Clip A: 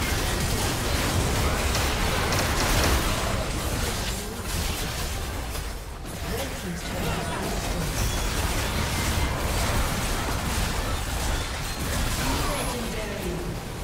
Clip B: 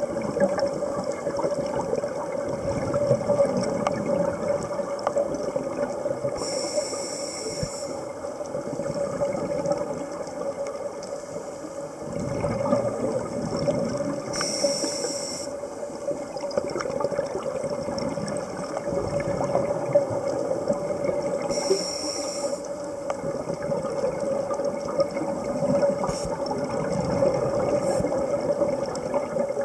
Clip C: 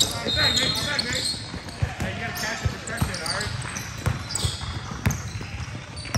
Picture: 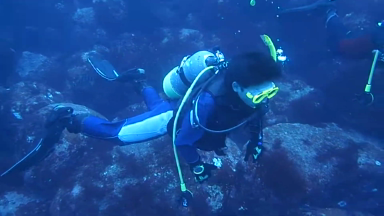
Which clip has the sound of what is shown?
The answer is B